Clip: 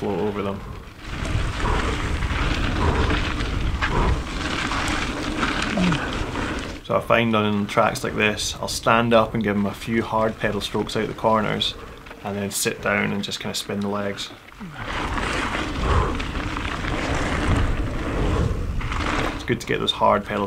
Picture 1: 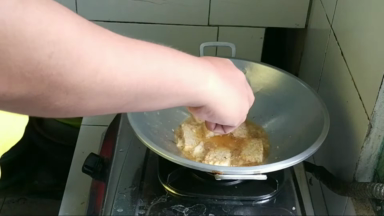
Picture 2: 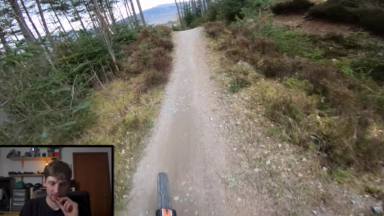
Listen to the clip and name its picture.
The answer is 2